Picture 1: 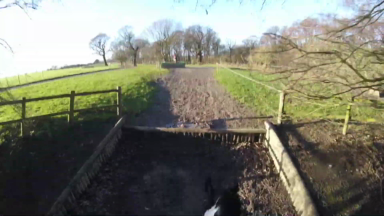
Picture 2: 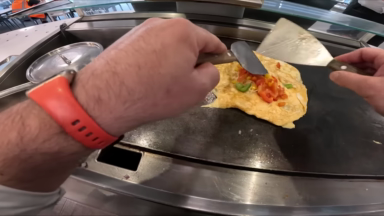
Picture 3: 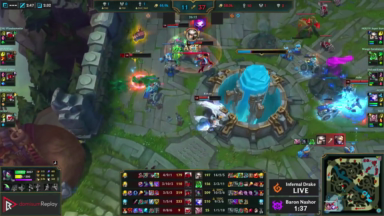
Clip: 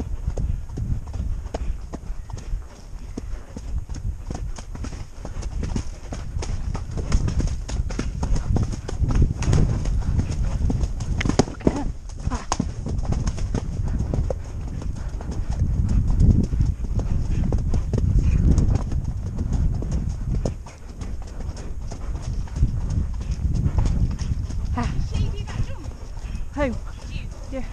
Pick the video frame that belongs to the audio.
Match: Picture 1